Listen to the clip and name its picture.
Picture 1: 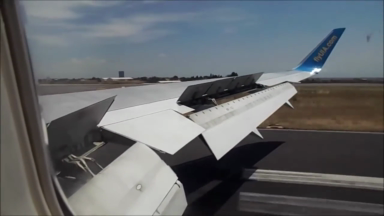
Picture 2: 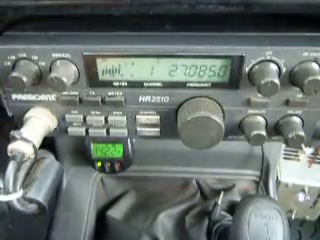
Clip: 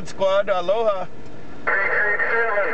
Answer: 2